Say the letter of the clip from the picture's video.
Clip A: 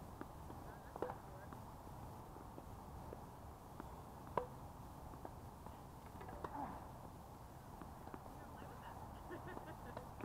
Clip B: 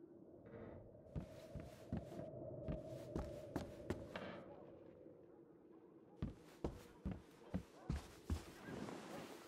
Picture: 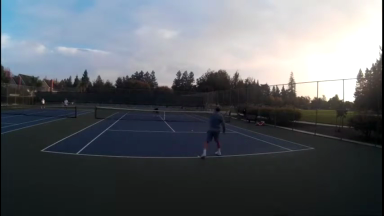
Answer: A